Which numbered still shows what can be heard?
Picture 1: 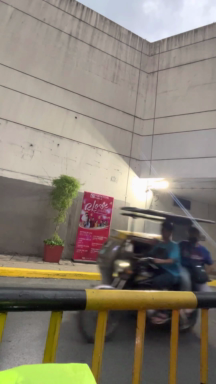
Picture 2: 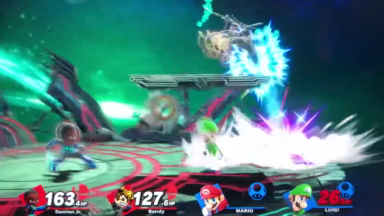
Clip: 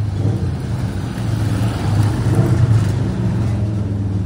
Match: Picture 1